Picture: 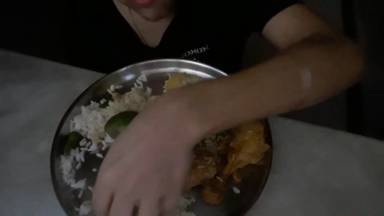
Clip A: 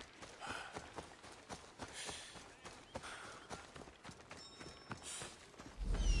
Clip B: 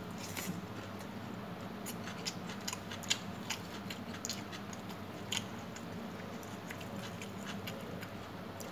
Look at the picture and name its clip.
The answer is B